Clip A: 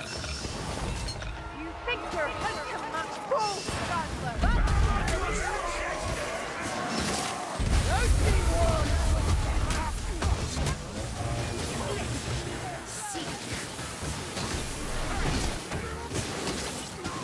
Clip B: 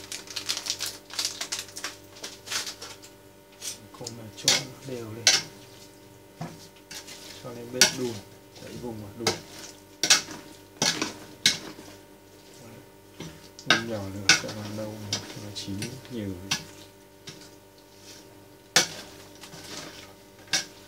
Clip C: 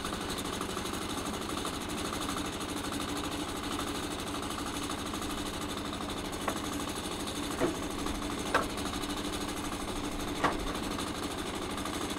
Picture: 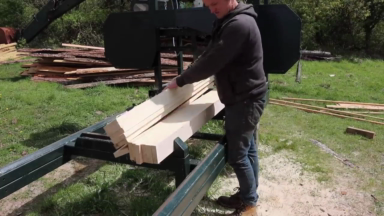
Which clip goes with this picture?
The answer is C